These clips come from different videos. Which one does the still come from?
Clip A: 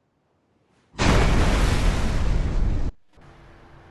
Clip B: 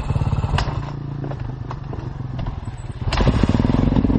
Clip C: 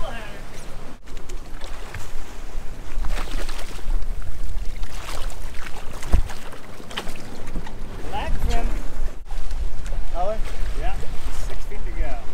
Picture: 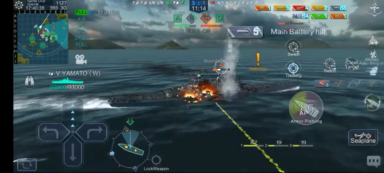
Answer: A